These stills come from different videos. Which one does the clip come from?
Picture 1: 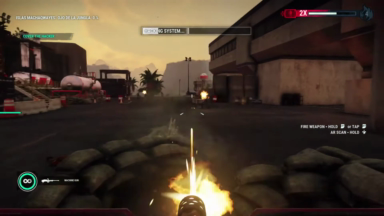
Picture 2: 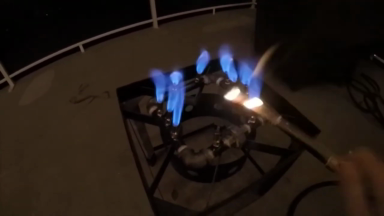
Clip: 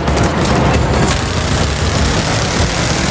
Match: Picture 1